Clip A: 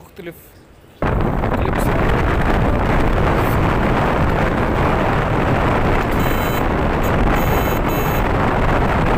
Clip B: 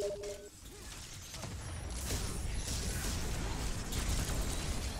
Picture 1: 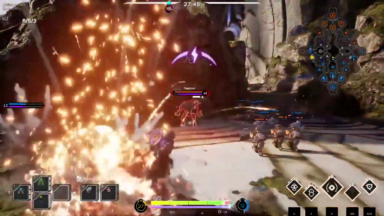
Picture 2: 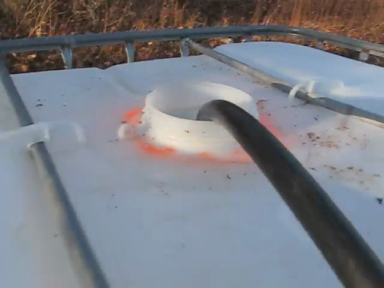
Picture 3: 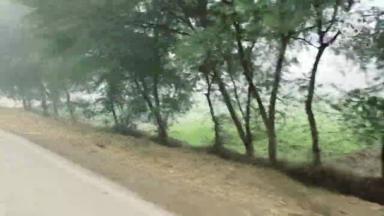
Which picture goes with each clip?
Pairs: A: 3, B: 1